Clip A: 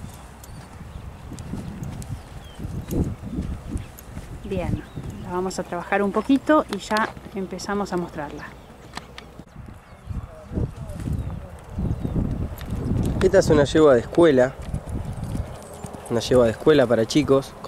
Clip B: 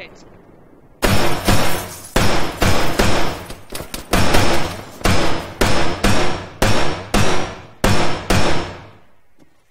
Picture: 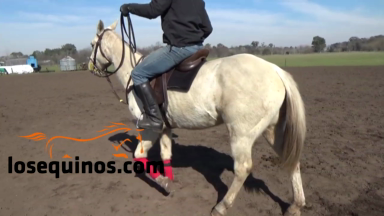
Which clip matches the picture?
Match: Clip A